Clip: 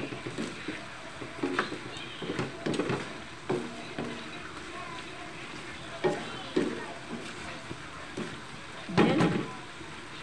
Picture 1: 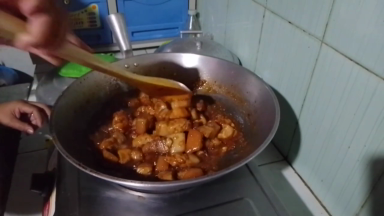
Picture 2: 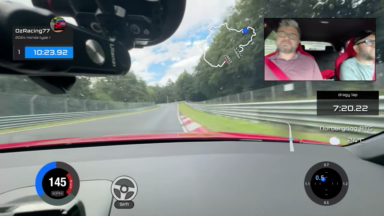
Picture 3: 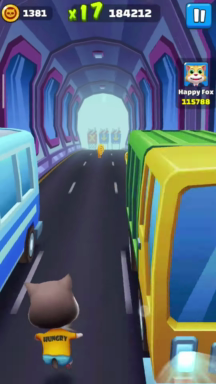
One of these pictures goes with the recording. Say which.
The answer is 1